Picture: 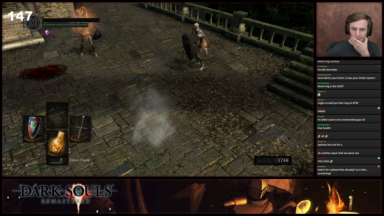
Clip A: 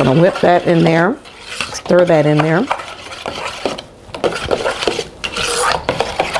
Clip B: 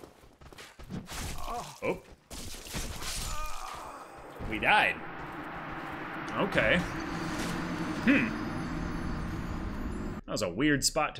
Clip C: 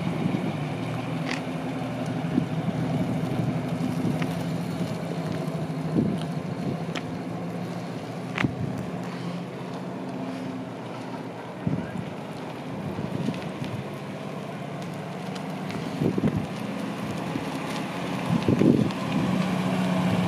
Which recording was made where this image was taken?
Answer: B